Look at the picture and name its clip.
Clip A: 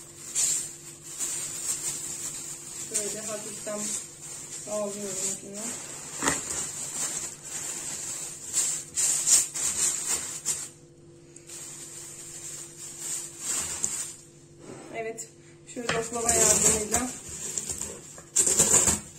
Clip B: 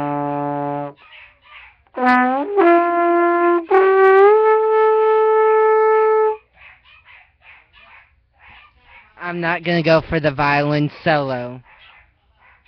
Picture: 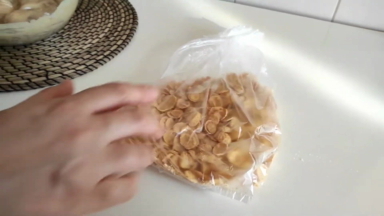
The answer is A